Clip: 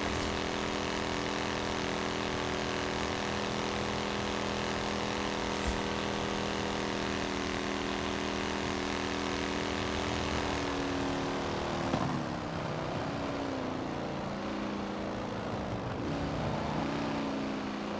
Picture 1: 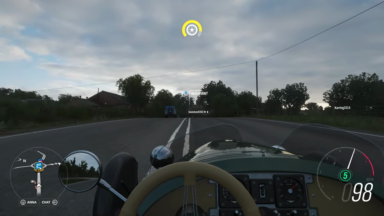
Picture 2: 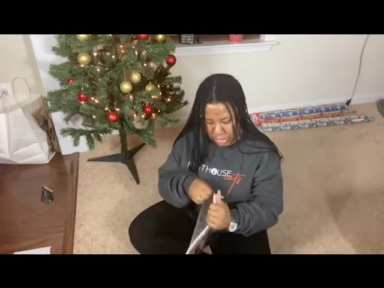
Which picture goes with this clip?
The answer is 1